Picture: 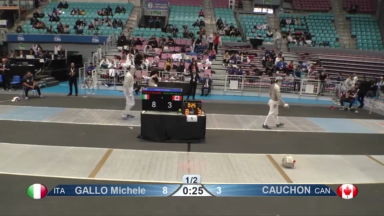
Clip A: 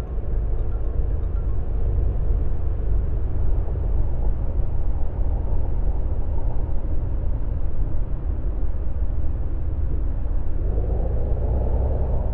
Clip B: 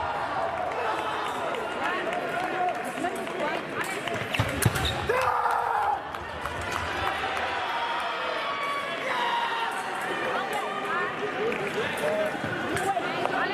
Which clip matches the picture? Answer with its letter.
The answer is B